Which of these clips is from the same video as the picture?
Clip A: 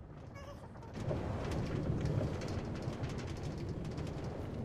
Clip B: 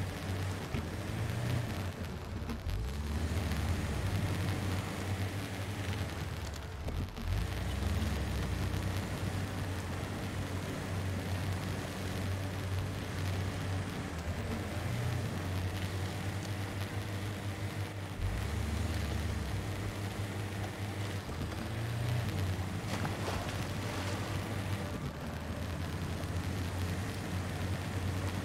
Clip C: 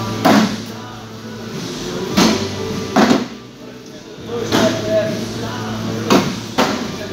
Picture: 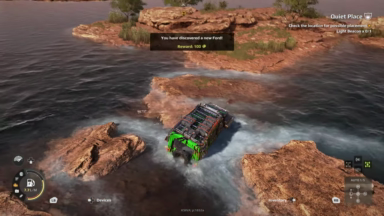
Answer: B